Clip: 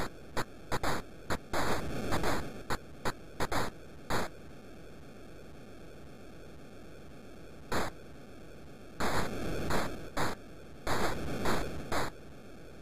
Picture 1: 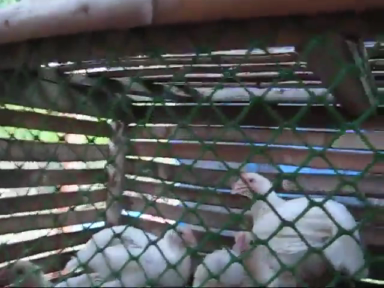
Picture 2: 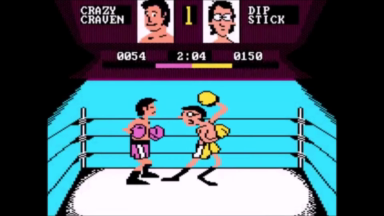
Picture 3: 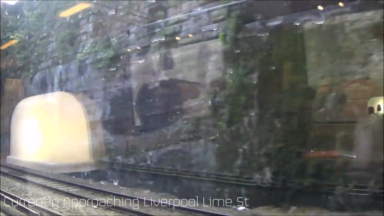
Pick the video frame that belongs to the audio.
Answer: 2